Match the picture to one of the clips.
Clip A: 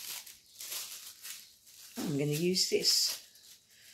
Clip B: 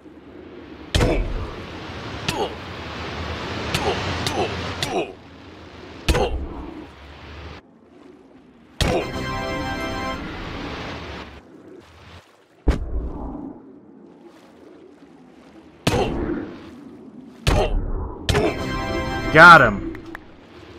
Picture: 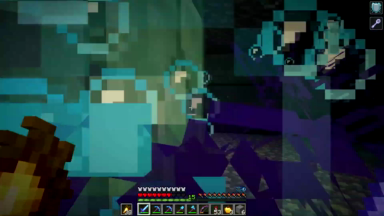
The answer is B